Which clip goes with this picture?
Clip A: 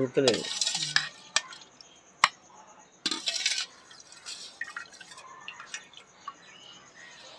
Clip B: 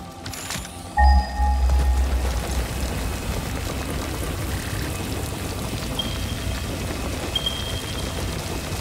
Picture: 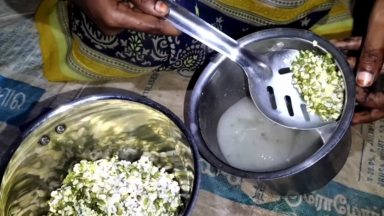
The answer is A